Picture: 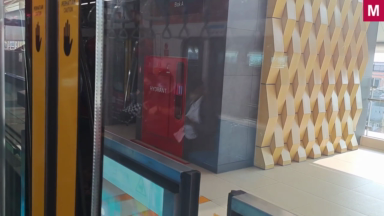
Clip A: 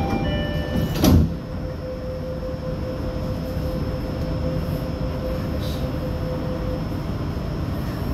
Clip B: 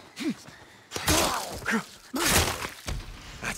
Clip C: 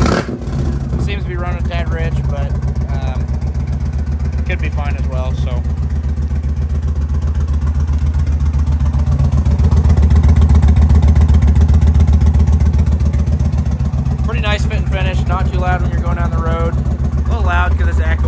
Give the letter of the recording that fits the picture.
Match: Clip A